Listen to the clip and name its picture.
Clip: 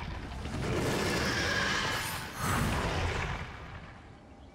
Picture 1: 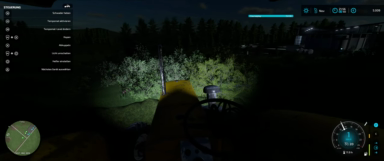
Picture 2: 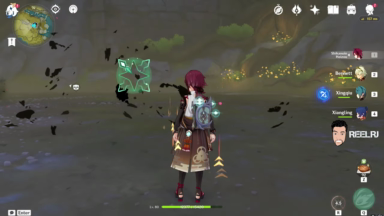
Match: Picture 2